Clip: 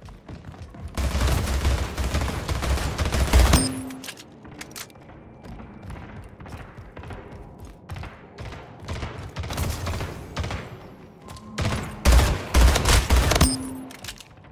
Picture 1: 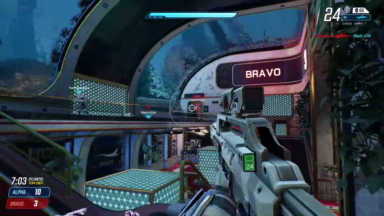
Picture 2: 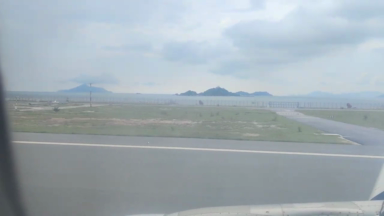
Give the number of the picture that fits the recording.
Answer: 1